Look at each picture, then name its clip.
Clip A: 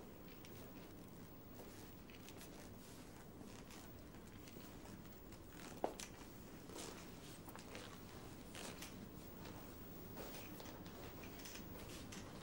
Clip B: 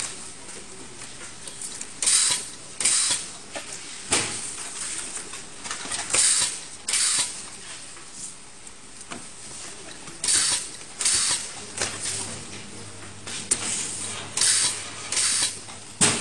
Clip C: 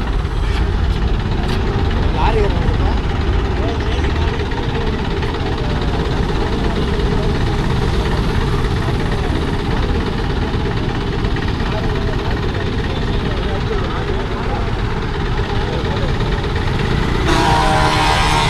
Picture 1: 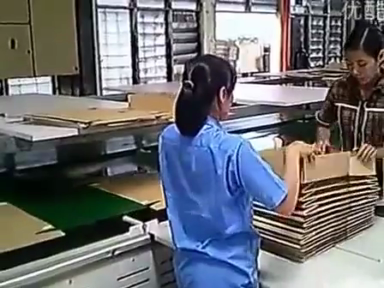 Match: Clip B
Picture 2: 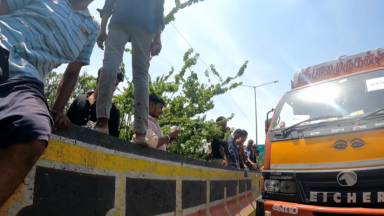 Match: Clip C